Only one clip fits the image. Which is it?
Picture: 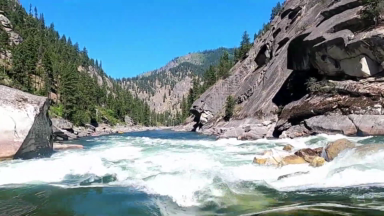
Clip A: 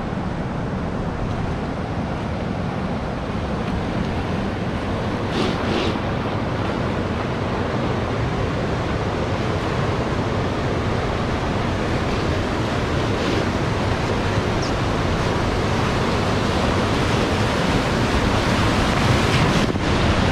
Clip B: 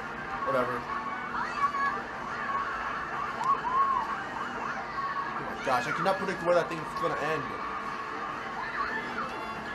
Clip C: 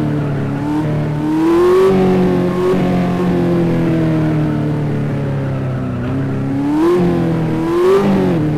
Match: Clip A